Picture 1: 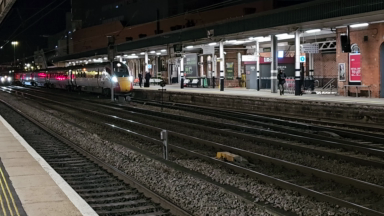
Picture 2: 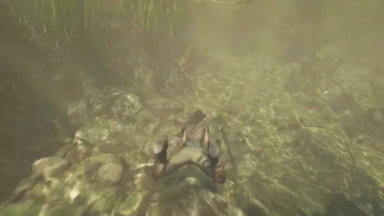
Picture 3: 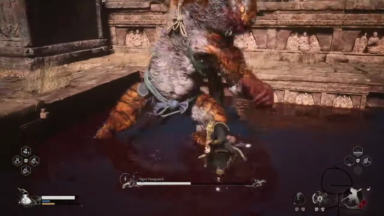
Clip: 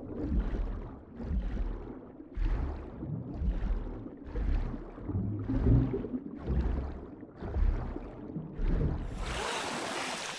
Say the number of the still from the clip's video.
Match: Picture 2